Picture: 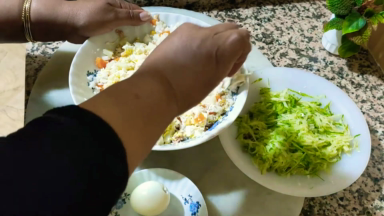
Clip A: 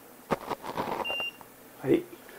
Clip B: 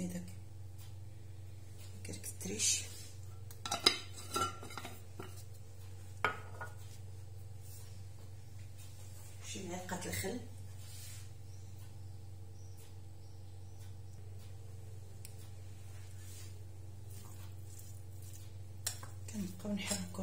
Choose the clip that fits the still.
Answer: B